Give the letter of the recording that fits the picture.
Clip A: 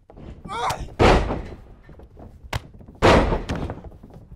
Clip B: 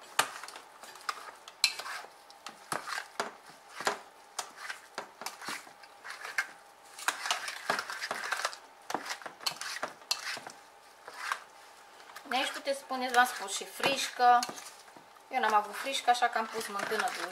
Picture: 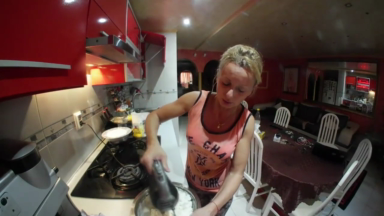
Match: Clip B